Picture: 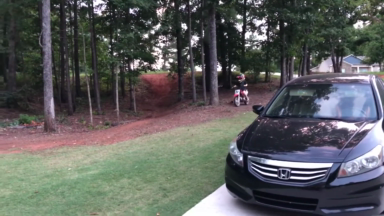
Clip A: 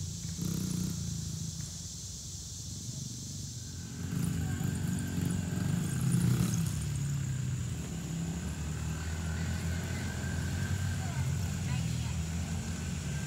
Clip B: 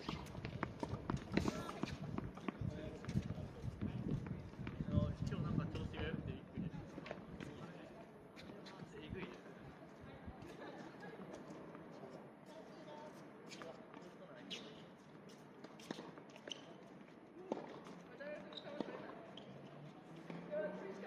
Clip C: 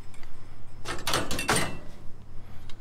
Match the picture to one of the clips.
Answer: A